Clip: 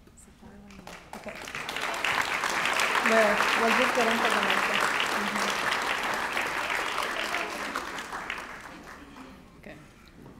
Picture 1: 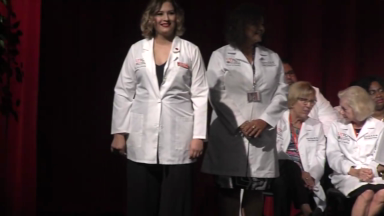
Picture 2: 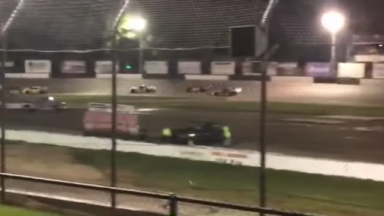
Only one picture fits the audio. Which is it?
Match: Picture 1